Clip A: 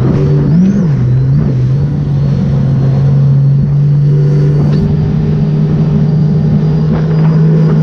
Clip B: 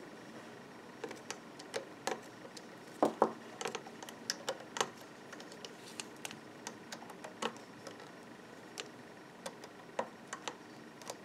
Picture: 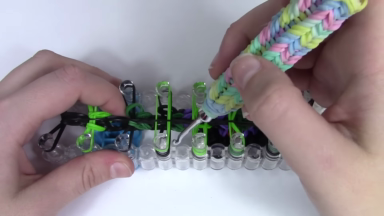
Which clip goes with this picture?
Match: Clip B